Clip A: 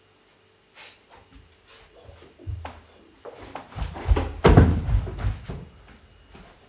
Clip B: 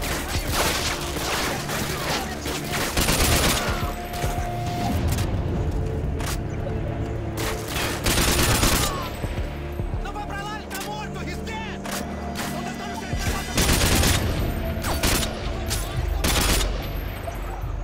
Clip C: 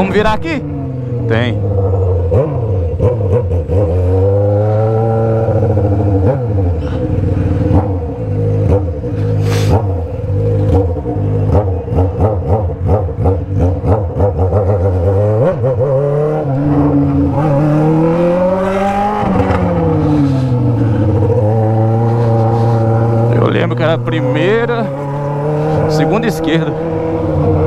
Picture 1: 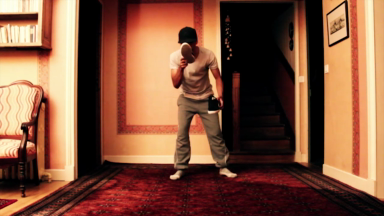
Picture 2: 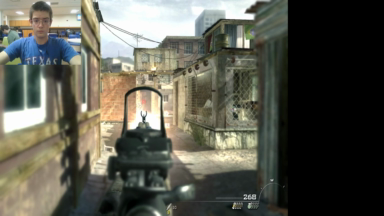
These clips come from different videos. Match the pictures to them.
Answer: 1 A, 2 B